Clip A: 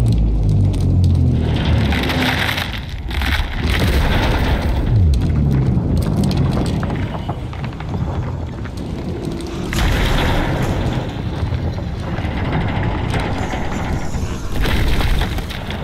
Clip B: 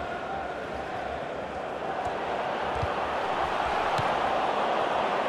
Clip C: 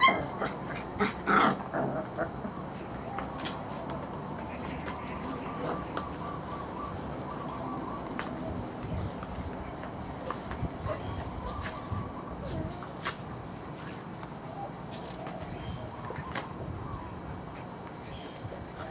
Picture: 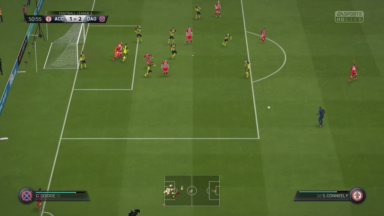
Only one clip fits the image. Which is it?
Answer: B